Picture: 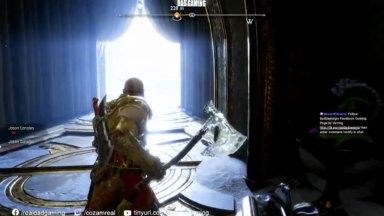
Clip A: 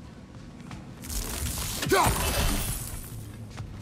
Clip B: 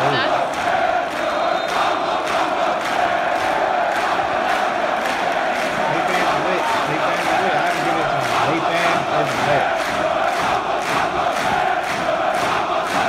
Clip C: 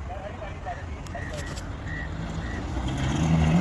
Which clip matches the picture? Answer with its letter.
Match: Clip A